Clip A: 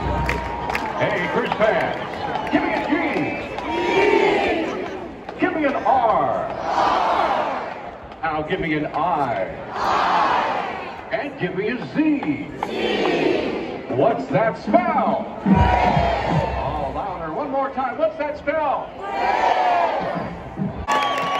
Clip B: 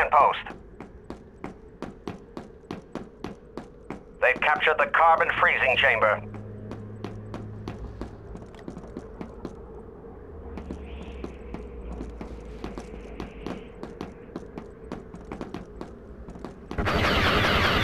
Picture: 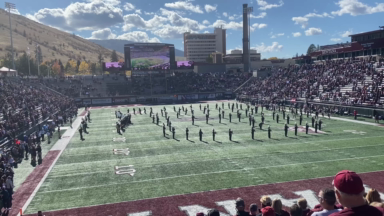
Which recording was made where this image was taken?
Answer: A